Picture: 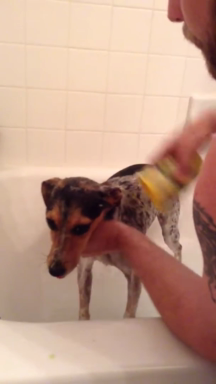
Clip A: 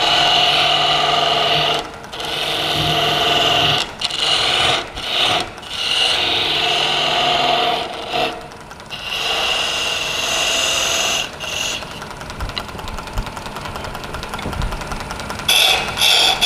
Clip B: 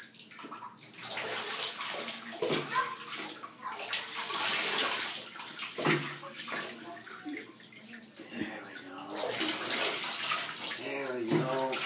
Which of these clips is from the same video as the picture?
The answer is B